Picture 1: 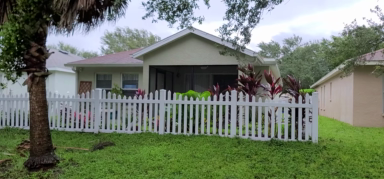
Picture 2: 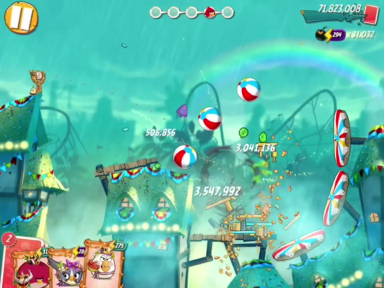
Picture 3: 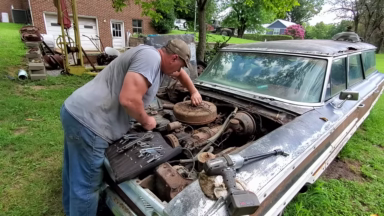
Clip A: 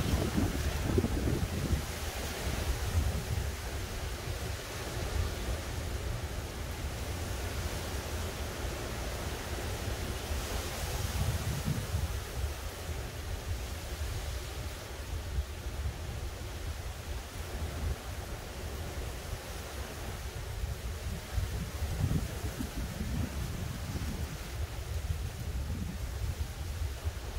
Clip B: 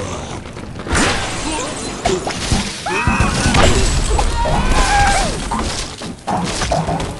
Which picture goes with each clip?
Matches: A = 1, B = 2